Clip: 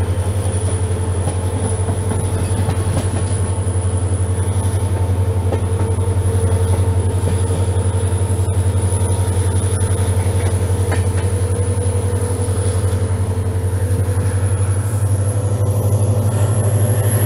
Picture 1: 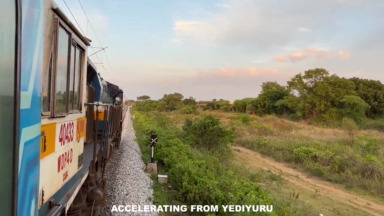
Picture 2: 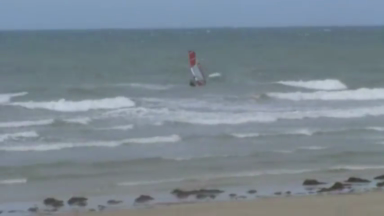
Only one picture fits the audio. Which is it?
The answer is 1